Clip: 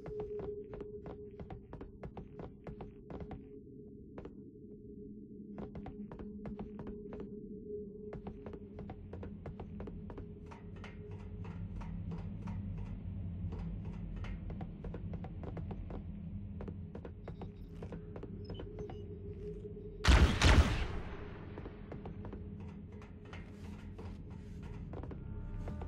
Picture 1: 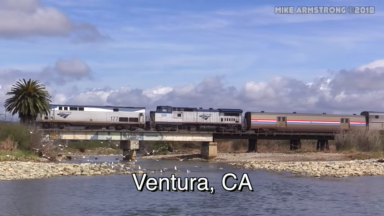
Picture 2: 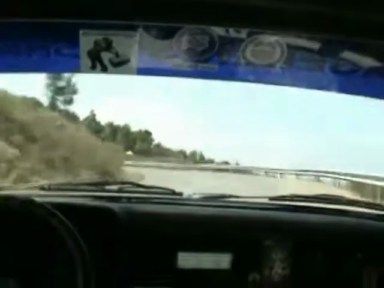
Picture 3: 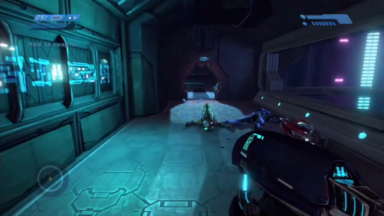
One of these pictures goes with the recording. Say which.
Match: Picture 3